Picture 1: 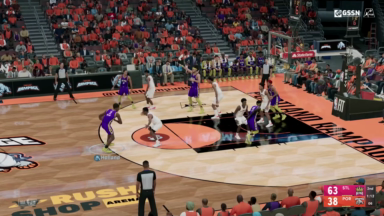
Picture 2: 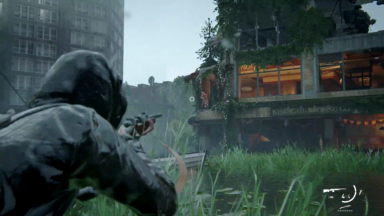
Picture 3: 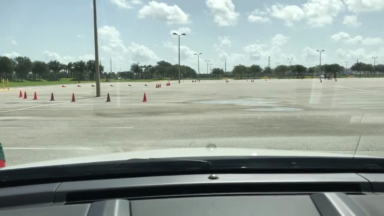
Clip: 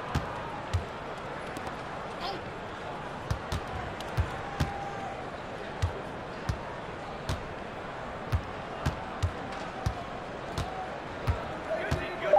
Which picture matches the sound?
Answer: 1